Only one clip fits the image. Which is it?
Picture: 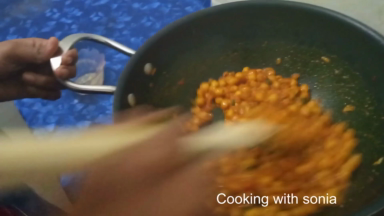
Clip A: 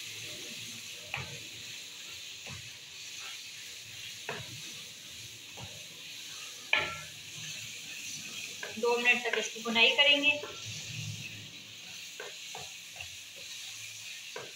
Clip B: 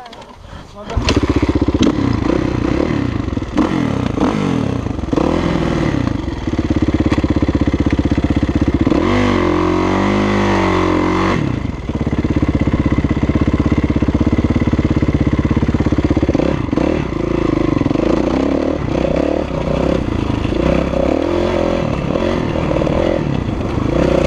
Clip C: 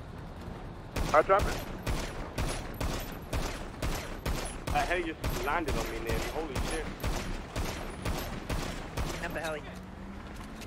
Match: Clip A